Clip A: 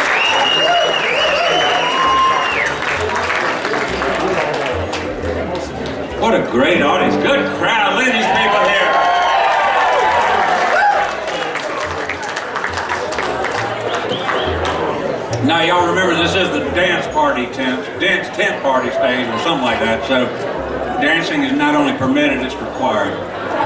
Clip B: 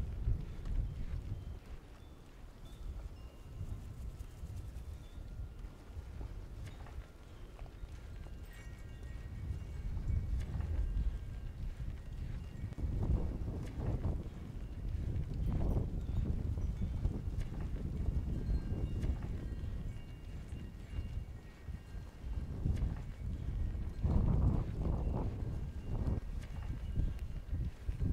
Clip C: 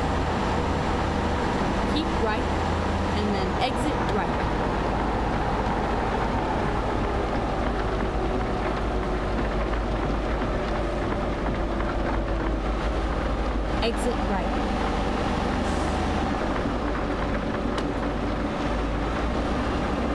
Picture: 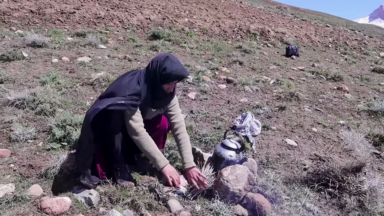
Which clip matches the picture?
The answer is B